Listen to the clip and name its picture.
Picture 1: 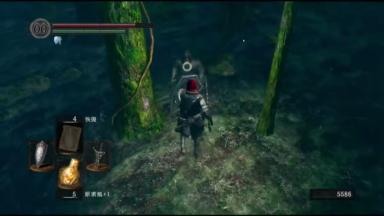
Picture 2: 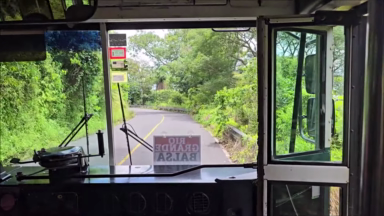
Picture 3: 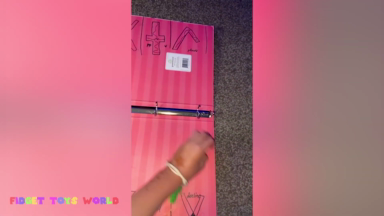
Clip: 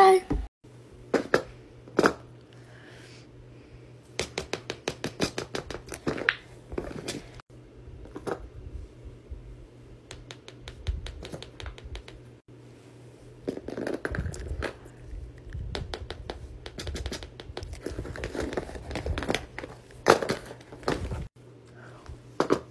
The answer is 3